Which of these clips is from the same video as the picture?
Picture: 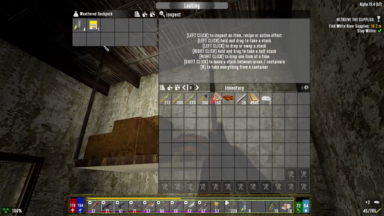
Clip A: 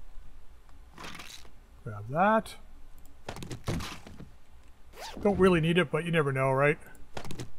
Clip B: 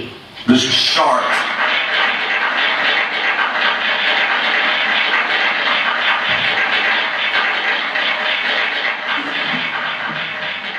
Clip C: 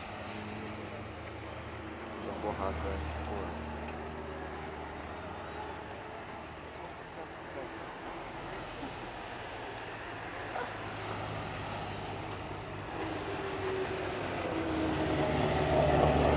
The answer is A